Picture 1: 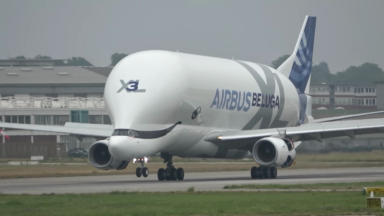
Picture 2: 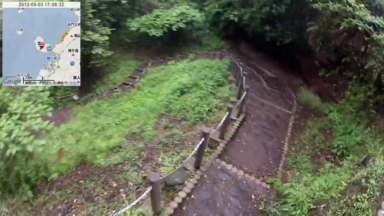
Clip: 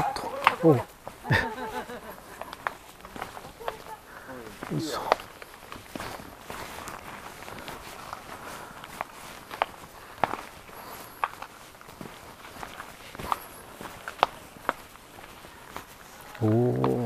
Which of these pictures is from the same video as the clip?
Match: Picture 2